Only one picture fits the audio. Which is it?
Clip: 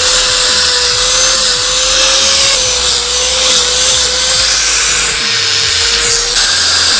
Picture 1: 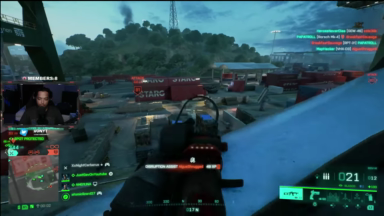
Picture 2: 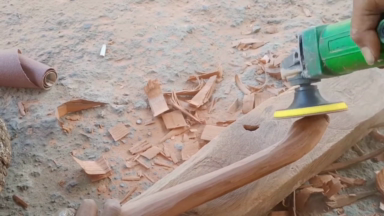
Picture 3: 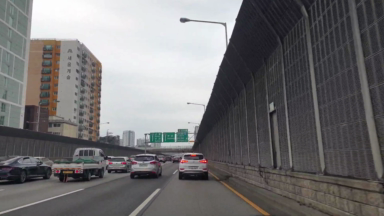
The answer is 2